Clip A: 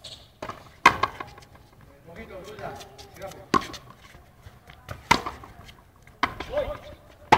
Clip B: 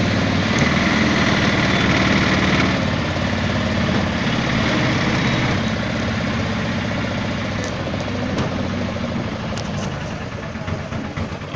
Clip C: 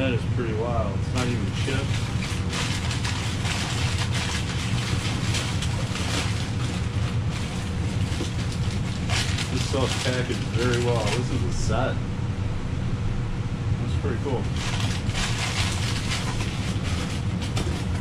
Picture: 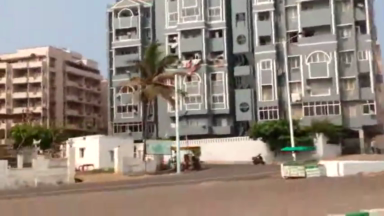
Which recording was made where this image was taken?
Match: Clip B